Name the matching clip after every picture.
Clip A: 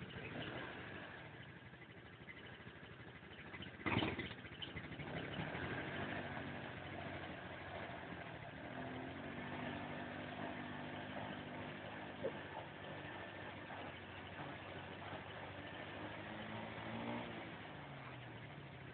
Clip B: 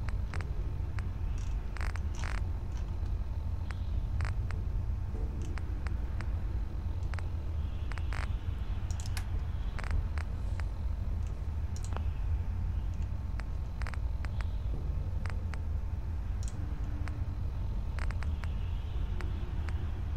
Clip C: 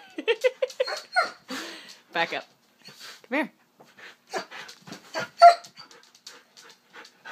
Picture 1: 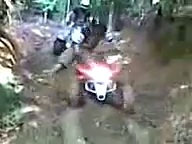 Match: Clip A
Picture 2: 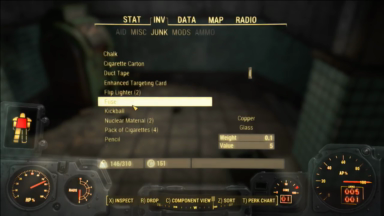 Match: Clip B